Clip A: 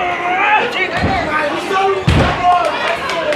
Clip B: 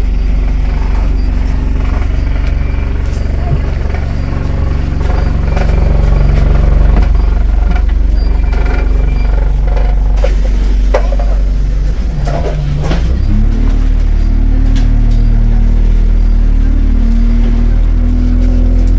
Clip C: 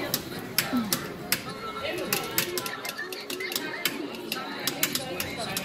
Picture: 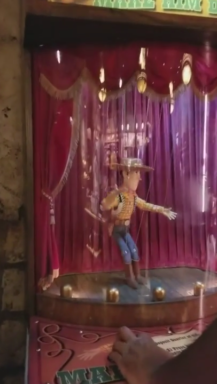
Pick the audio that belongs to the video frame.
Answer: C